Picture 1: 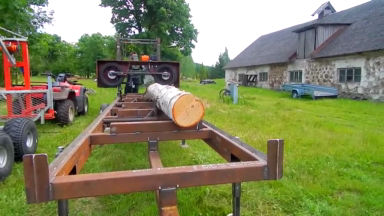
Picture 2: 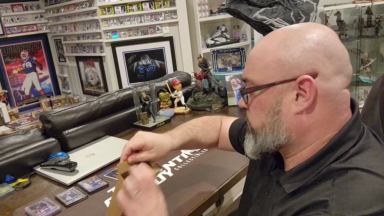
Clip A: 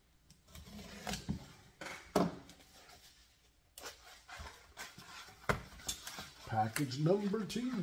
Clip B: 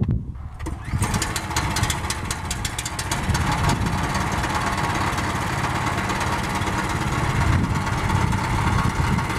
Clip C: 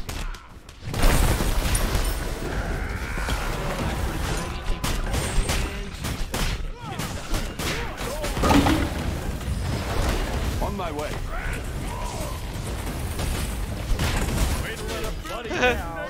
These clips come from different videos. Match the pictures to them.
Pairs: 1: B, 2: A